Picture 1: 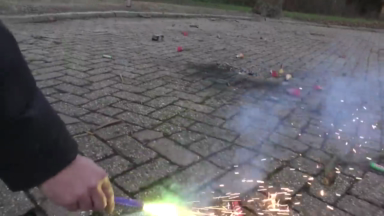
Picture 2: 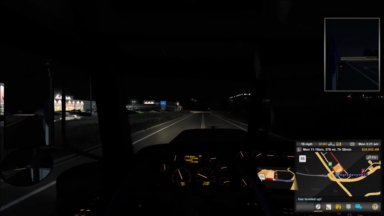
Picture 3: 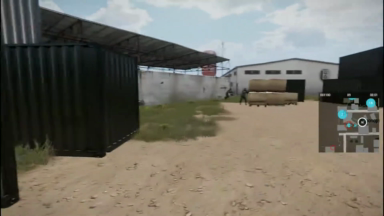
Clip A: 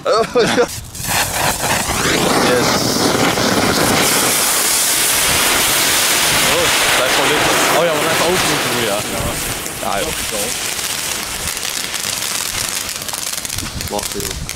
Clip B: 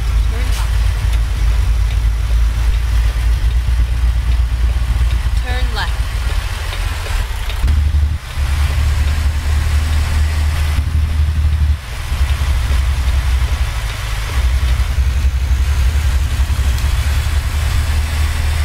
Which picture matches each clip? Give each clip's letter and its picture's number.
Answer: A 1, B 2